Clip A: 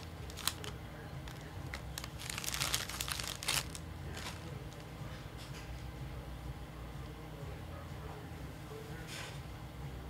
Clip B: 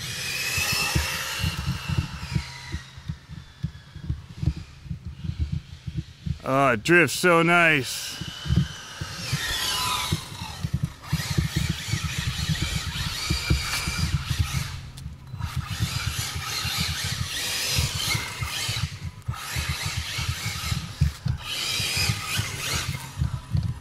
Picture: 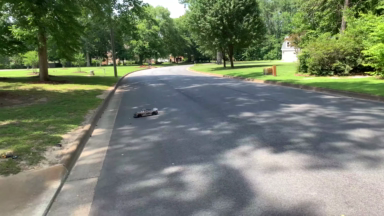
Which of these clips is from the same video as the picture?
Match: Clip B